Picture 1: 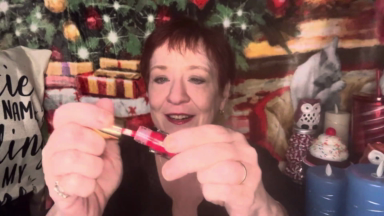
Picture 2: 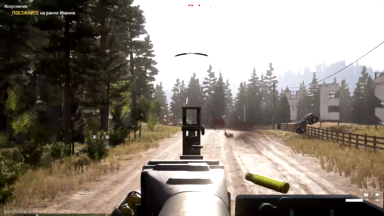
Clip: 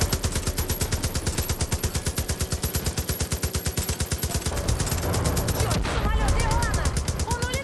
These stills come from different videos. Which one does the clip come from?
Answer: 2